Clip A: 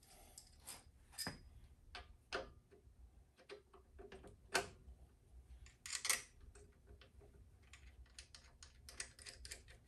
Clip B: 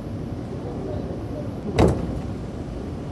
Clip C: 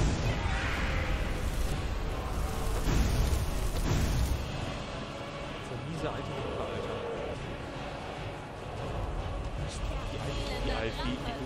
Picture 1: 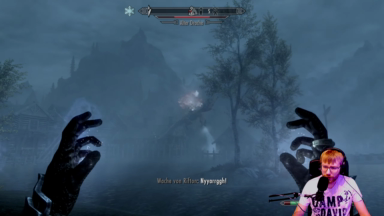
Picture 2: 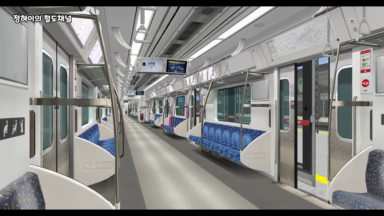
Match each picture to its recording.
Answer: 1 C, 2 B